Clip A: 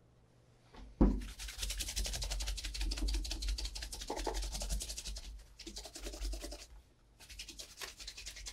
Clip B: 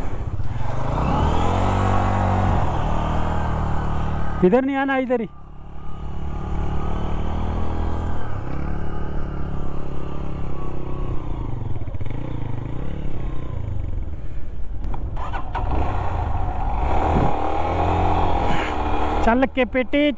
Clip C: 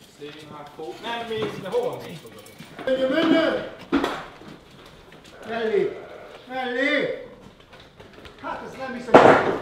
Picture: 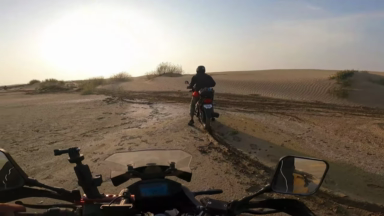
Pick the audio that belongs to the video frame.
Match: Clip B